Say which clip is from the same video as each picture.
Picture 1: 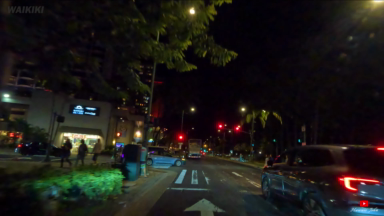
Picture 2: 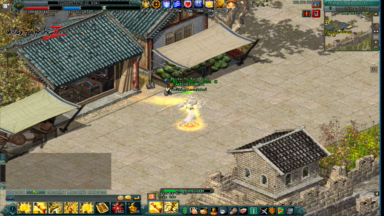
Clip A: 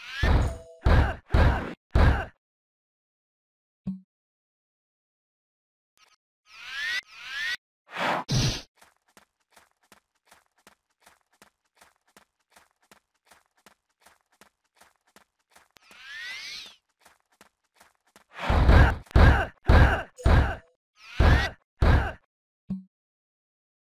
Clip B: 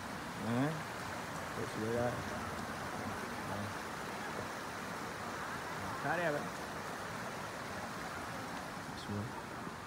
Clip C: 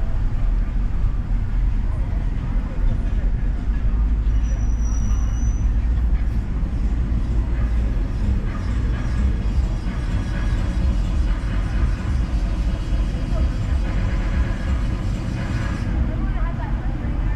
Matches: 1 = C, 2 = A